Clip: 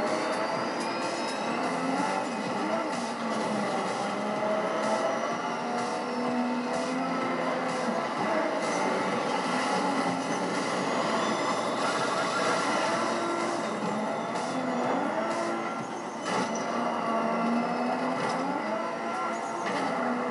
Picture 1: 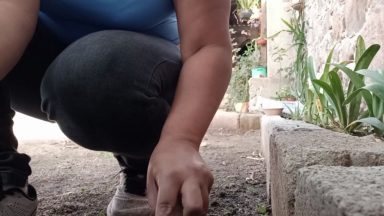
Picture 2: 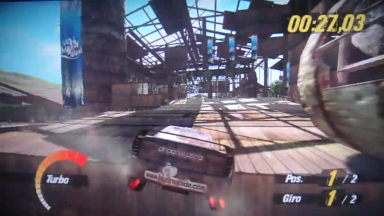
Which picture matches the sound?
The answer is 2